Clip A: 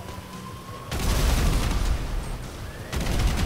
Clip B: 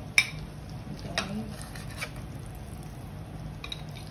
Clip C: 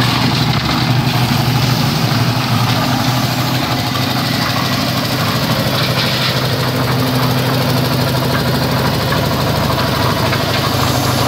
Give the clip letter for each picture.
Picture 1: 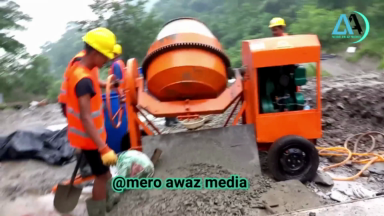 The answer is C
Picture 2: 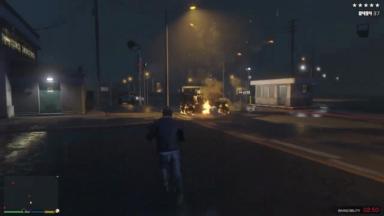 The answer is A